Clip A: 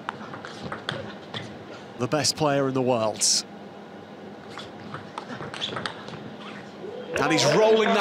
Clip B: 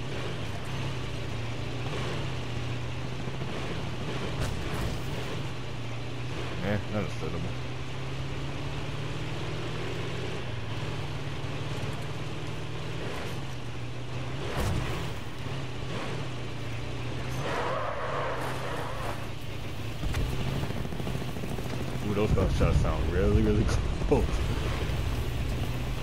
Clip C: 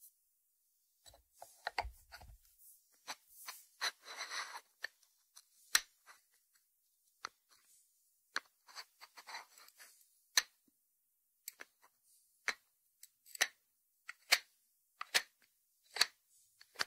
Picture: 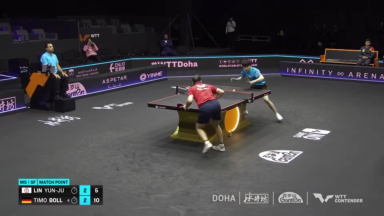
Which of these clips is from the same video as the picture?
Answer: A